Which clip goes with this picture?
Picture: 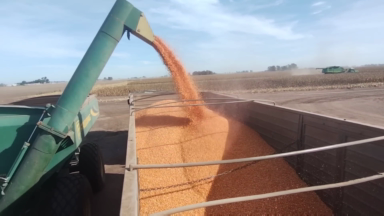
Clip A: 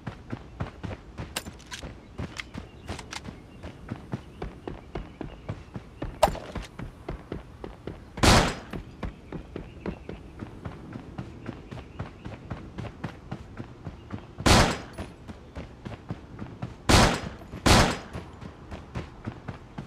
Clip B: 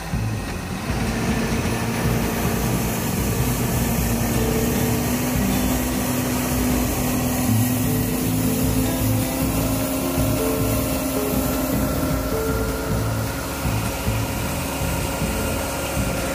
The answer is B